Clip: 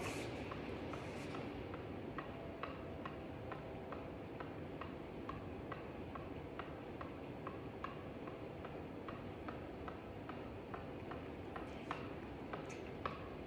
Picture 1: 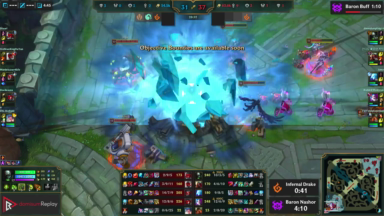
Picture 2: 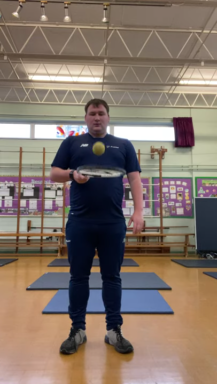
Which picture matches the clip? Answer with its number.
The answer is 2